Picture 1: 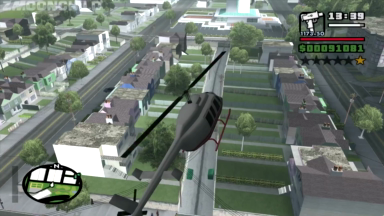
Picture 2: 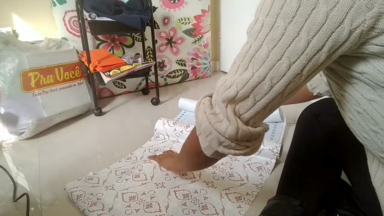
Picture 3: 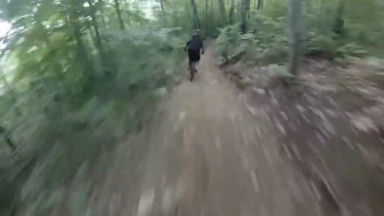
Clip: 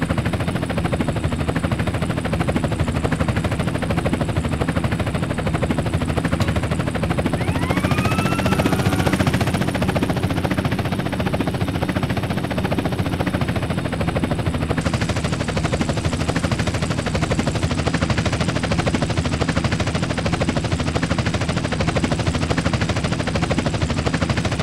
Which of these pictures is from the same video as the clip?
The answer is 1